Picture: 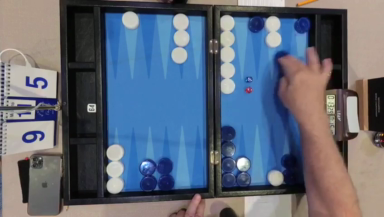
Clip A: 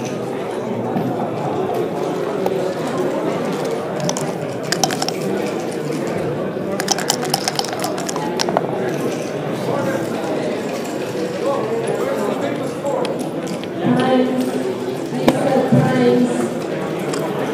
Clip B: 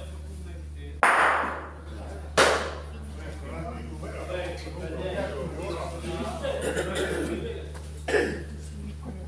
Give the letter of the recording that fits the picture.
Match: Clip A